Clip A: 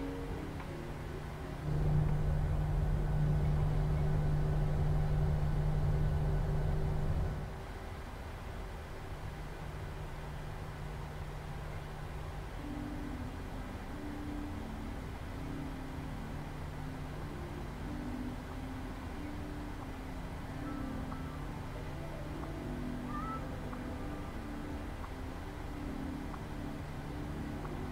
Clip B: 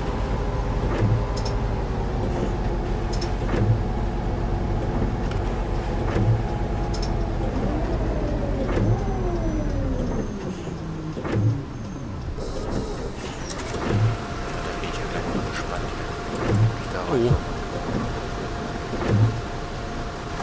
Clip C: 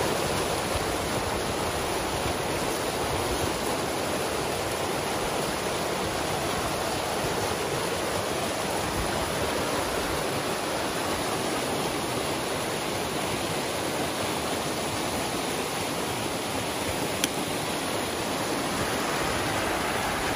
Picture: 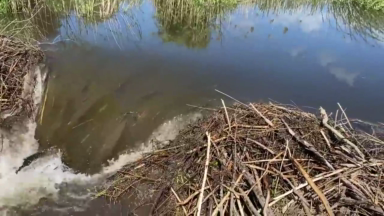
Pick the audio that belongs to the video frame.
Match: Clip C